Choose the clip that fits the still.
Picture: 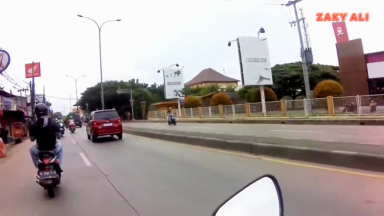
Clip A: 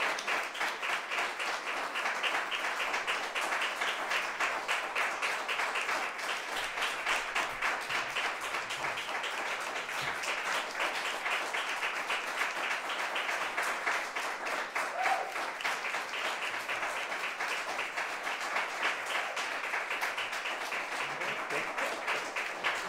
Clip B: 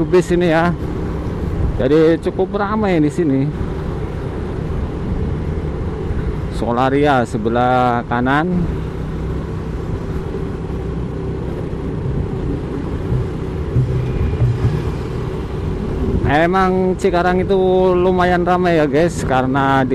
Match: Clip B